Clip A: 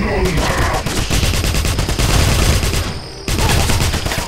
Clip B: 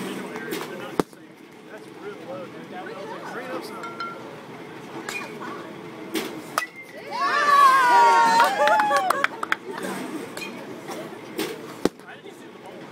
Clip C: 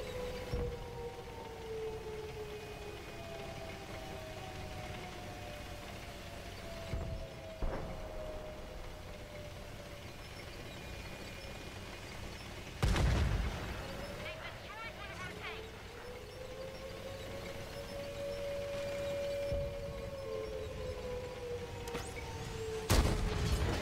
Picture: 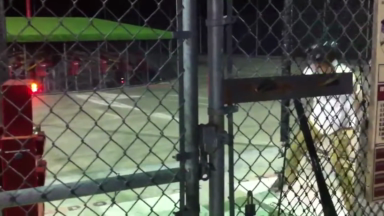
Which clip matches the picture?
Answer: B